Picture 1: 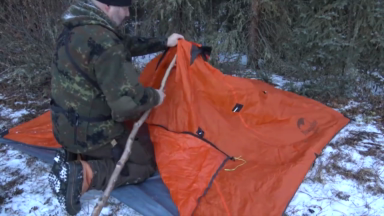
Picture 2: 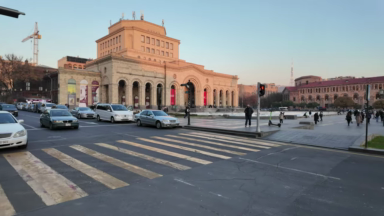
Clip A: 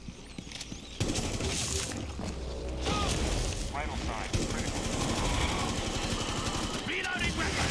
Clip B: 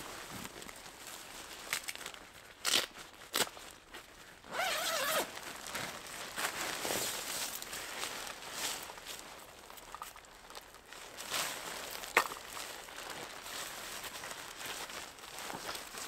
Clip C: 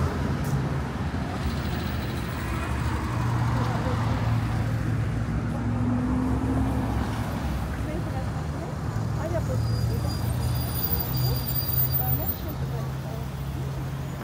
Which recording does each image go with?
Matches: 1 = B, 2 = C